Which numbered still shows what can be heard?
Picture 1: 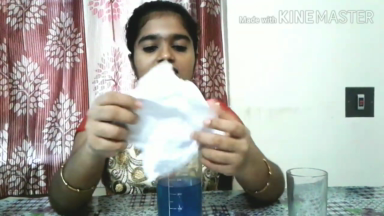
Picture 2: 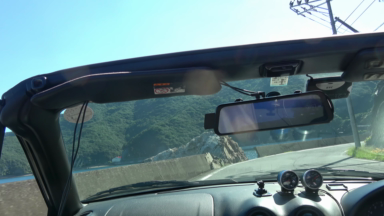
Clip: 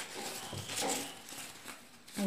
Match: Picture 1